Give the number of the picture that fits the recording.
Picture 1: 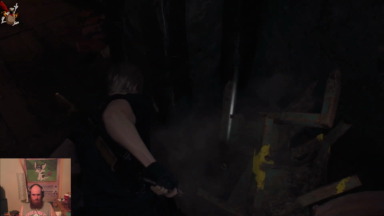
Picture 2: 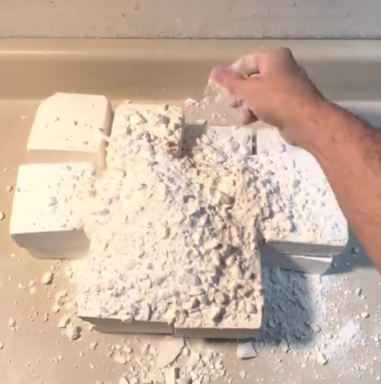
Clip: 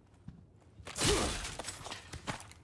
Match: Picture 1